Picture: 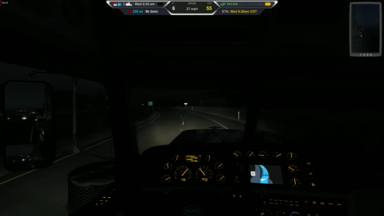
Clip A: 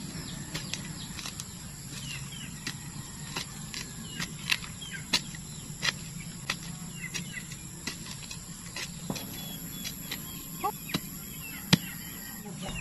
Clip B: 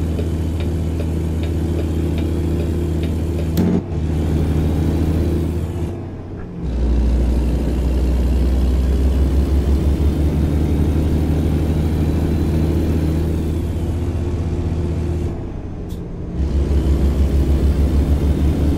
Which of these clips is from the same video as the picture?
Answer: B